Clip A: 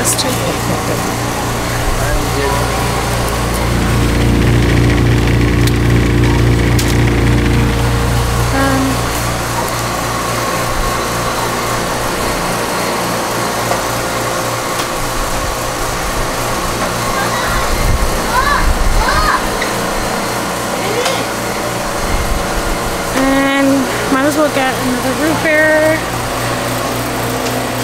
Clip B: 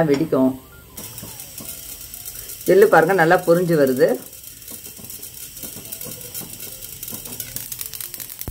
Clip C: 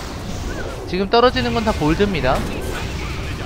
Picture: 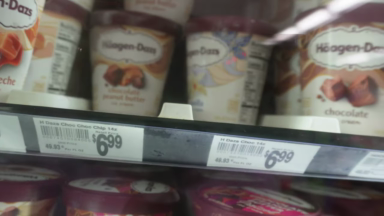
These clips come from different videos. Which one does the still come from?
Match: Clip A